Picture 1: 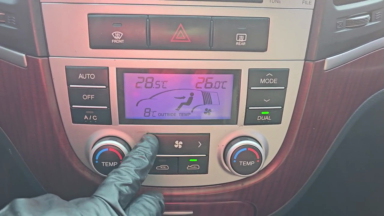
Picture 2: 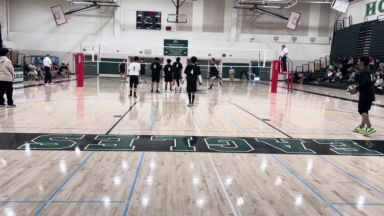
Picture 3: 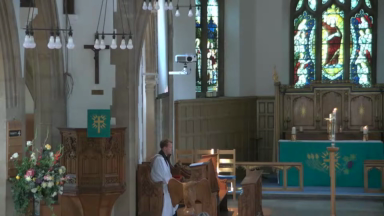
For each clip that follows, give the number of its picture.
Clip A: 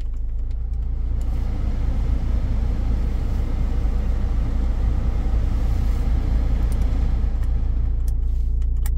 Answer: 1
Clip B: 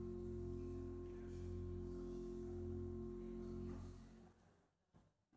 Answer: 3